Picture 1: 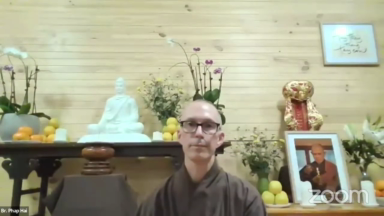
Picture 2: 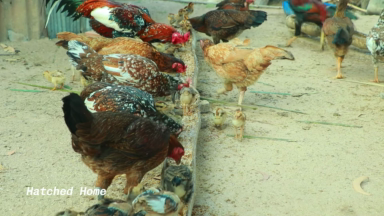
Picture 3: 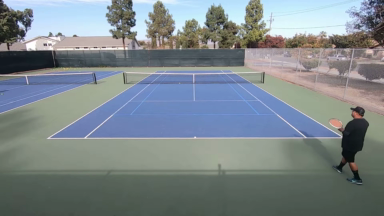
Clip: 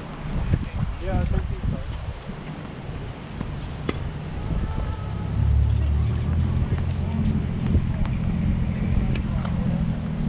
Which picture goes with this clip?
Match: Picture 3